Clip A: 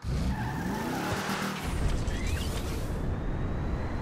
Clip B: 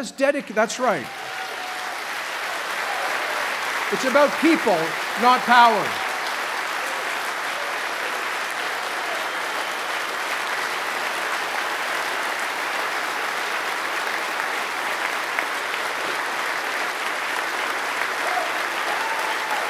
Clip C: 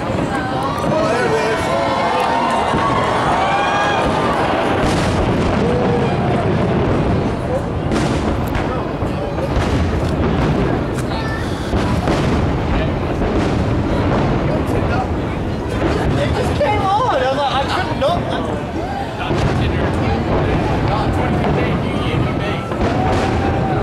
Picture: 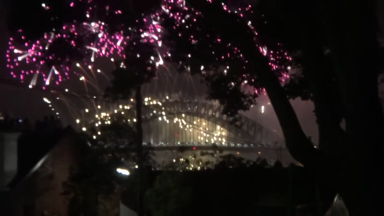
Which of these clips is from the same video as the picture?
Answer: C